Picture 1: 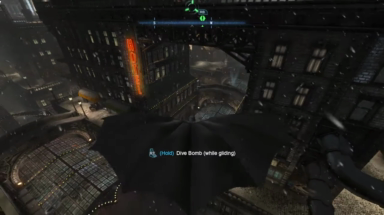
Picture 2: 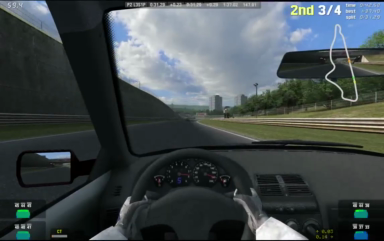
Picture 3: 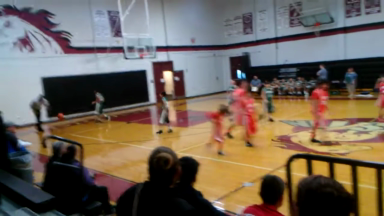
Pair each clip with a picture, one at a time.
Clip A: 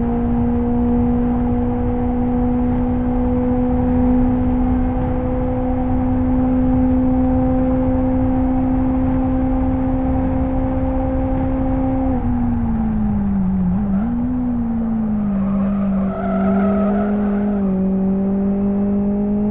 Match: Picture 2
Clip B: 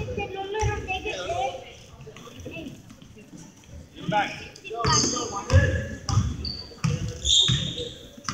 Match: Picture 3